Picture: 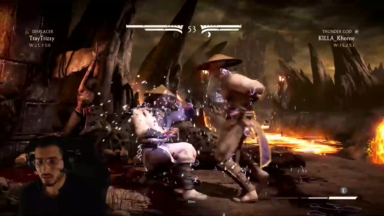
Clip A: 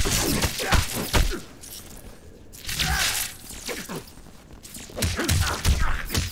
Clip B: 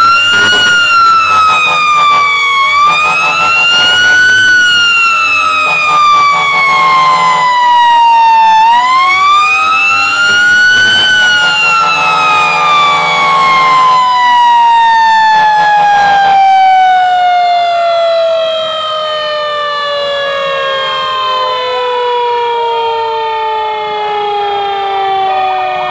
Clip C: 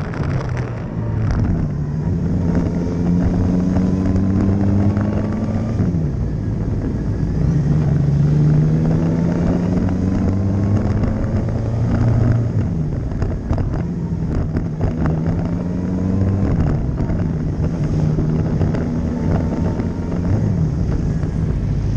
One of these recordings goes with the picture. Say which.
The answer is A